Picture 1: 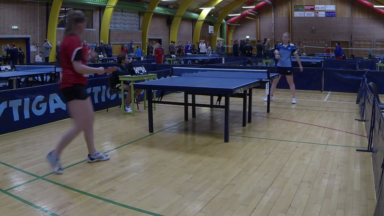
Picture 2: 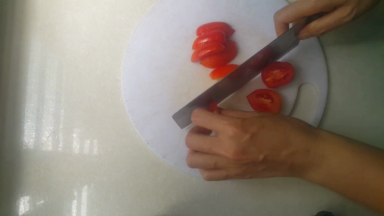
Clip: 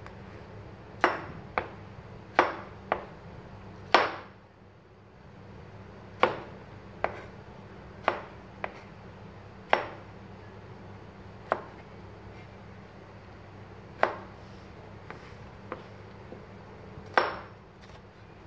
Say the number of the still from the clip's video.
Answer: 2